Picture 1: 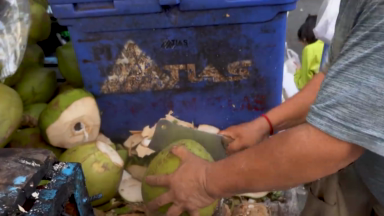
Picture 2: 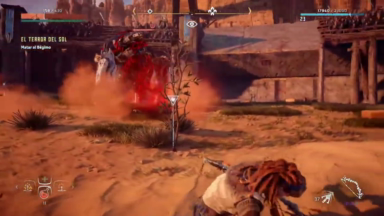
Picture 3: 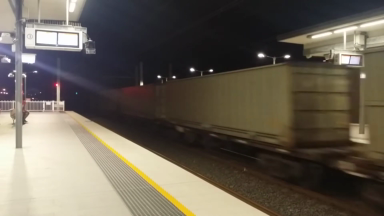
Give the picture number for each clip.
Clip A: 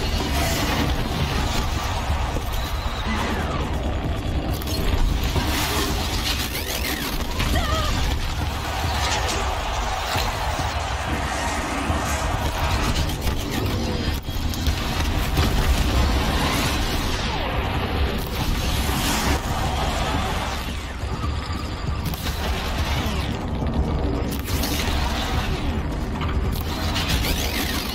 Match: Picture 2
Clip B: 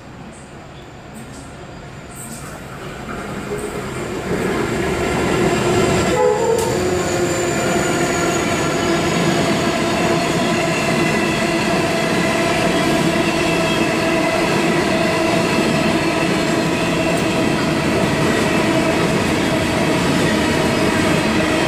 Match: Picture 3